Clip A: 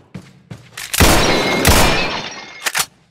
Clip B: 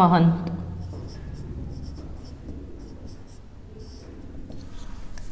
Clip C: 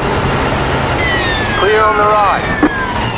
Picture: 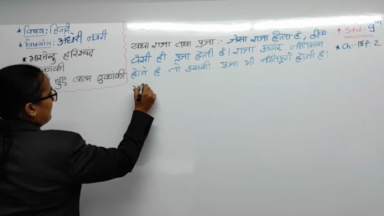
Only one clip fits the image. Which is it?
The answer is B